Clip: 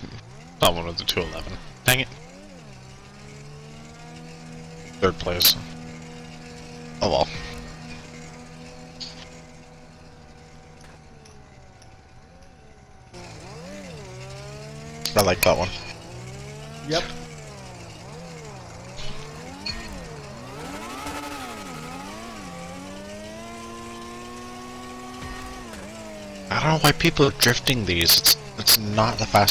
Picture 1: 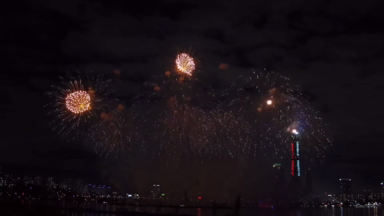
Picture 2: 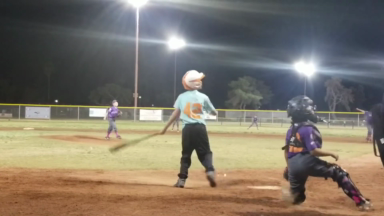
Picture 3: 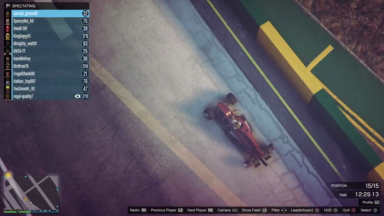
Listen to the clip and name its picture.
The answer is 3